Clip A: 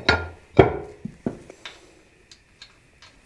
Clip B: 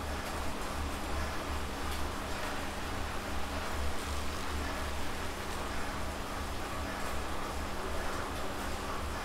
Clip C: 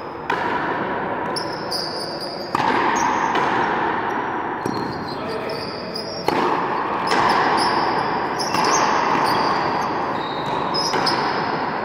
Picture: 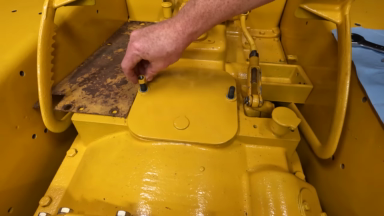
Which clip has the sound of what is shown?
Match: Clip A